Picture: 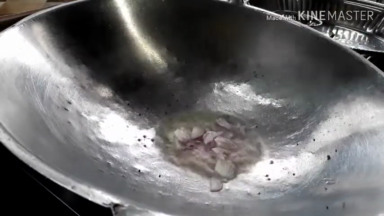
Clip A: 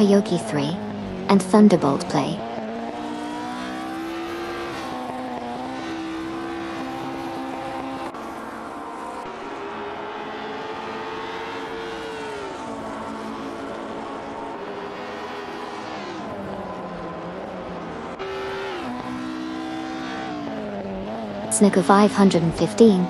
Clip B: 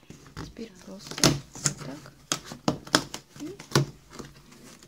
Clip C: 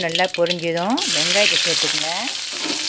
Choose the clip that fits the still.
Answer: C